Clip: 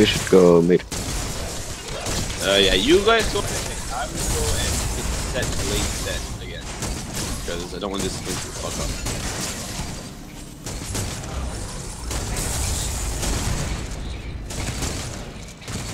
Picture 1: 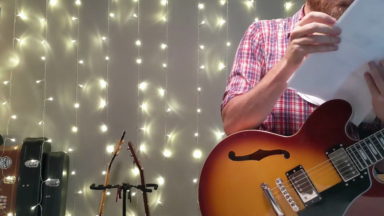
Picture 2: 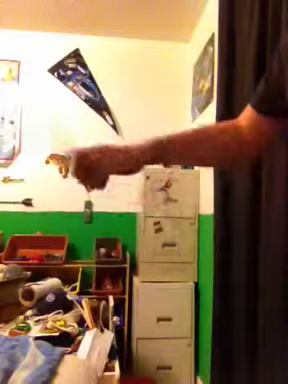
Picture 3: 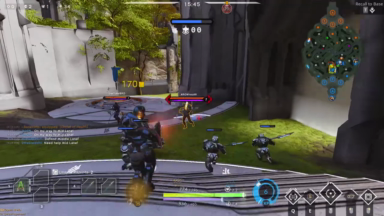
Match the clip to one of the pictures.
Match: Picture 3